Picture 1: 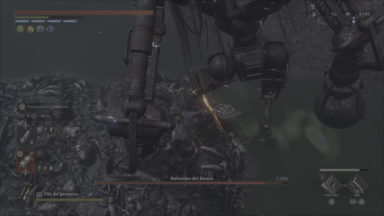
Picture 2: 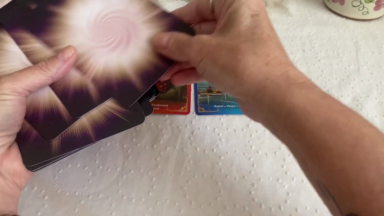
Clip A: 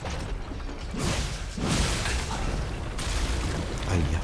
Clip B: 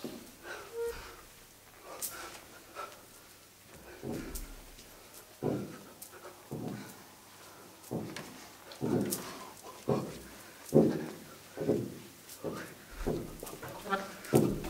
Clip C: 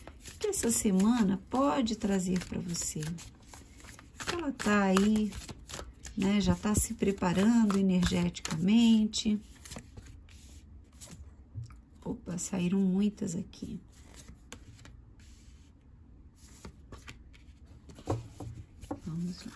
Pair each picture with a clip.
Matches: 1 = A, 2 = C